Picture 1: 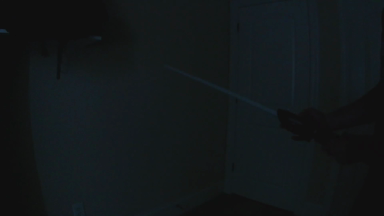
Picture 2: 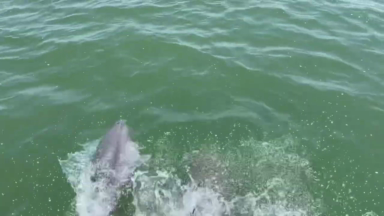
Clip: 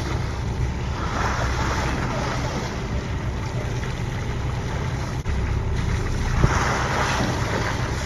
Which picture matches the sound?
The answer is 2